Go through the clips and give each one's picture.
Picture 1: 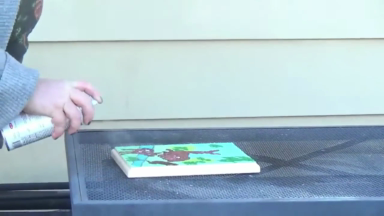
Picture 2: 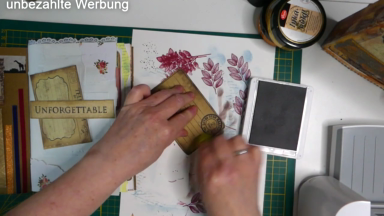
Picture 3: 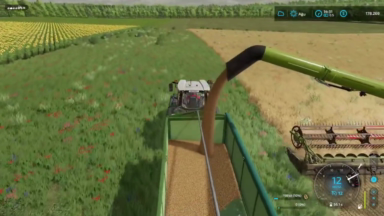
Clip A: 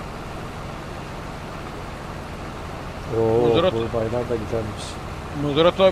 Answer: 3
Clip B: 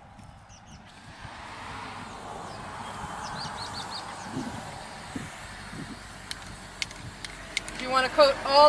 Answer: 1